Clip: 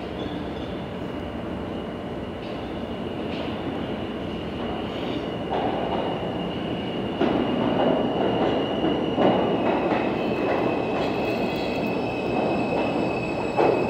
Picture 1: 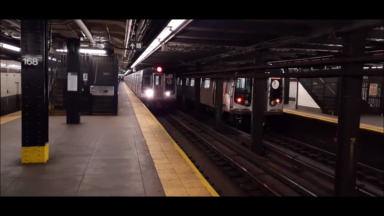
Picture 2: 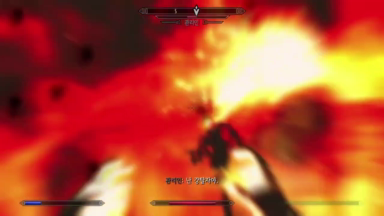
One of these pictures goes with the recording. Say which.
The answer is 1